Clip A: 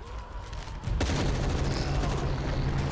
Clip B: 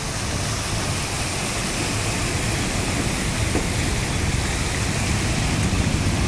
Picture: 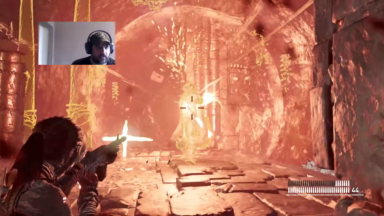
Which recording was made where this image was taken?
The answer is A